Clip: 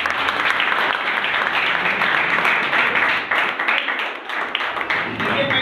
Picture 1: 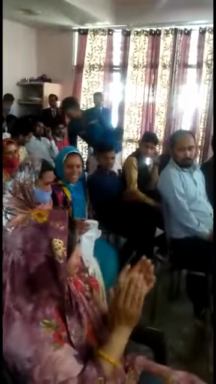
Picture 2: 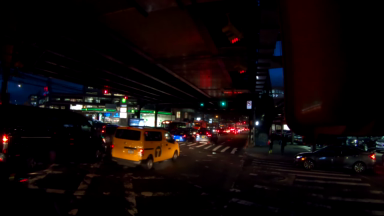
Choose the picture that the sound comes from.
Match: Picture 1